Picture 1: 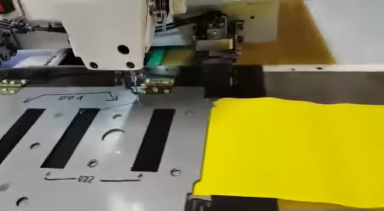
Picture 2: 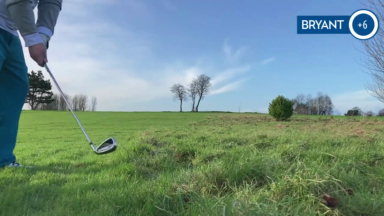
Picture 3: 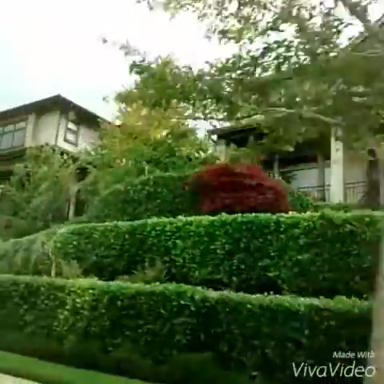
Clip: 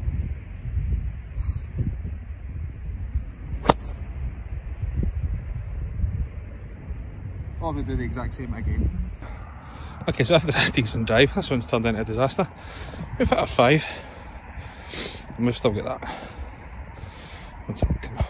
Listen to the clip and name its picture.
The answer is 2